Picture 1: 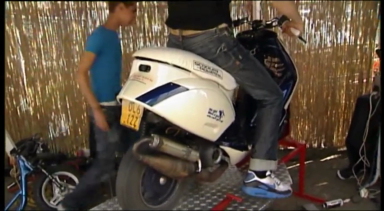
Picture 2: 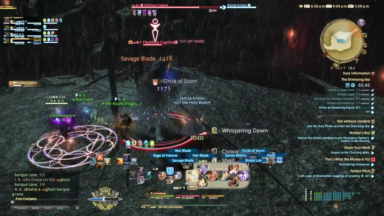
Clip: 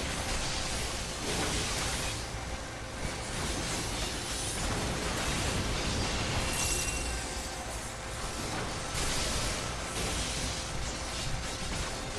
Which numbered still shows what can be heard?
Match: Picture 2